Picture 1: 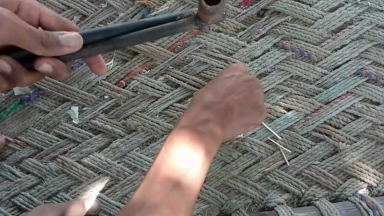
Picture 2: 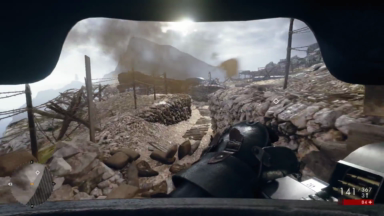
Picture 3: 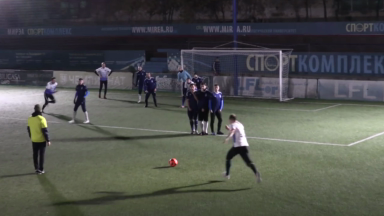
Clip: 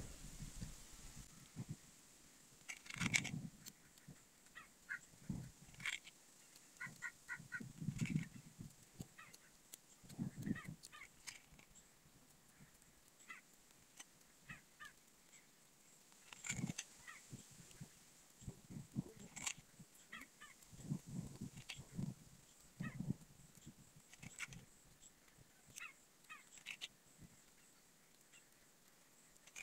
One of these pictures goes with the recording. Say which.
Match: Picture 1